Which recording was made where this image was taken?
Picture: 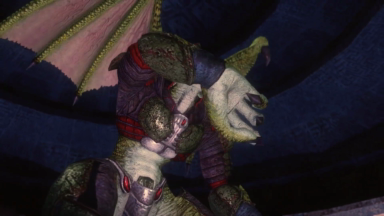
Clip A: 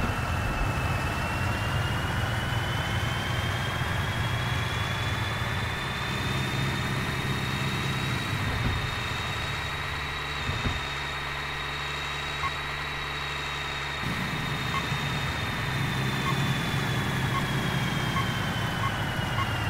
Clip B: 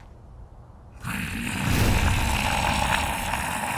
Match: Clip B